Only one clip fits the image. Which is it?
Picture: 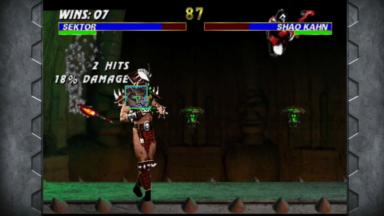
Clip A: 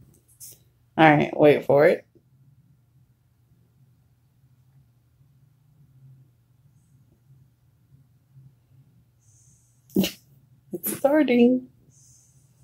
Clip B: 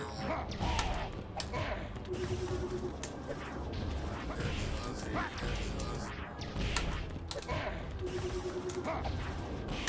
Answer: B